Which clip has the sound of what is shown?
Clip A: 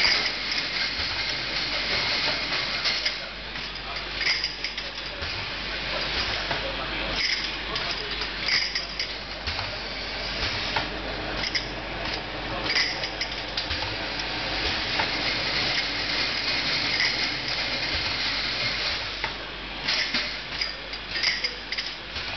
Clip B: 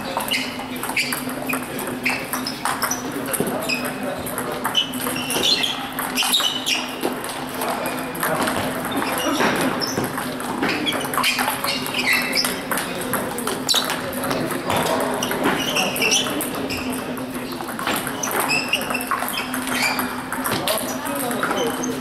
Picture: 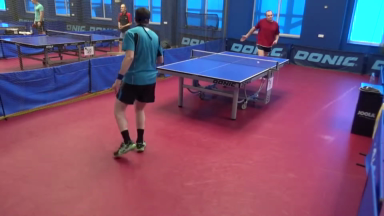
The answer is B